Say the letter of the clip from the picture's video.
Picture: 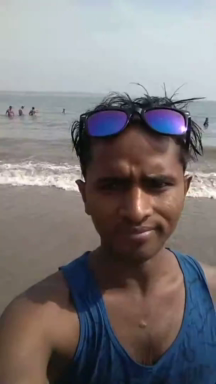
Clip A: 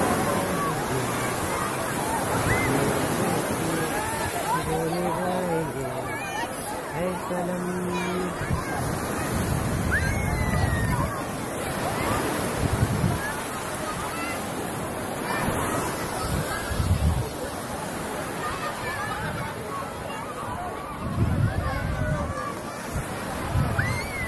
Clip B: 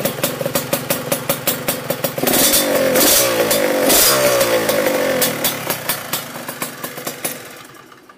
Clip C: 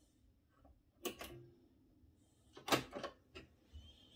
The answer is A